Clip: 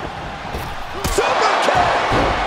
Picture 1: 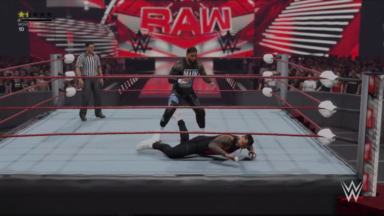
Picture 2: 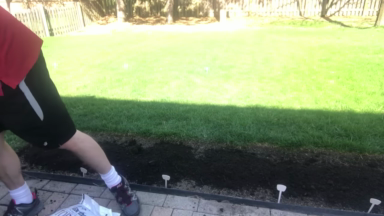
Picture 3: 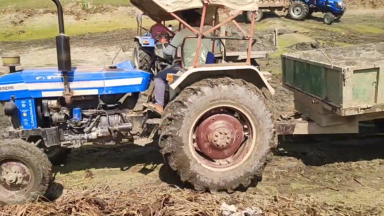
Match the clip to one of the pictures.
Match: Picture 1